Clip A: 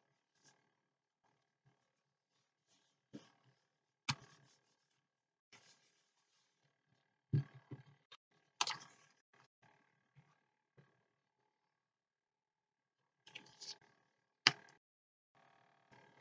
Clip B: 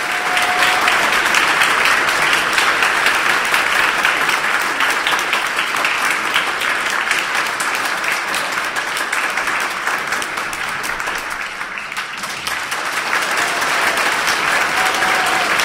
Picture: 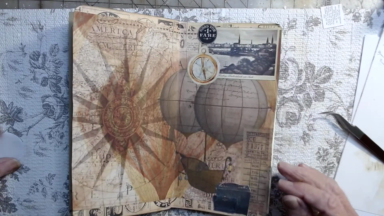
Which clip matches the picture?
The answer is A